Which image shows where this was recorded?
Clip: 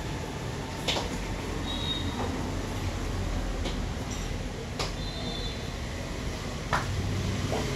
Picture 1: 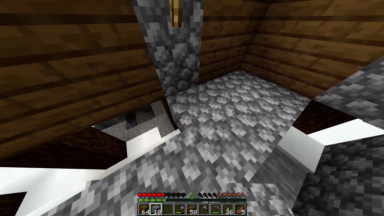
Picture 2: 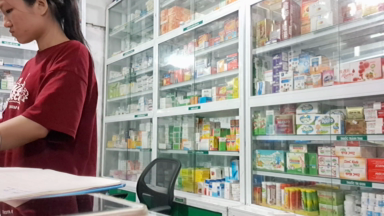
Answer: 2